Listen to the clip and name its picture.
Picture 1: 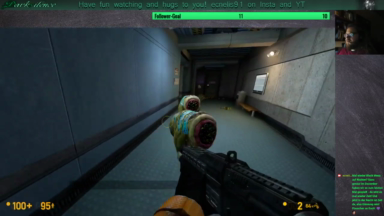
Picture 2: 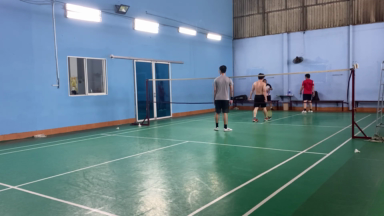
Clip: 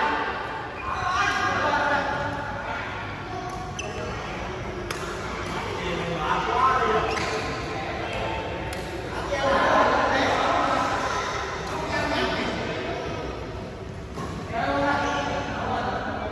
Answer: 2